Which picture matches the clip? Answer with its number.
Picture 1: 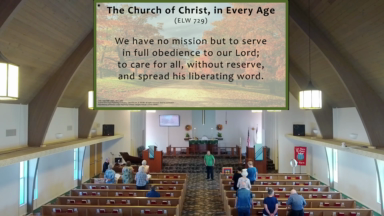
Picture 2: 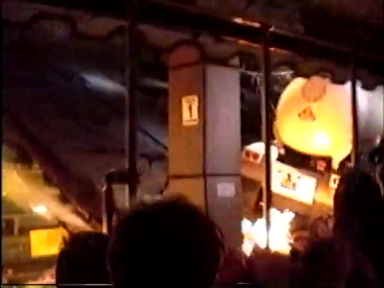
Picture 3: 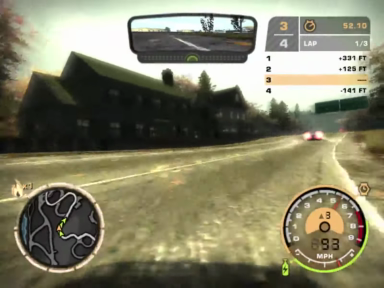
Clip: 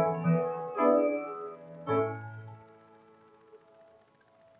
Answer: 1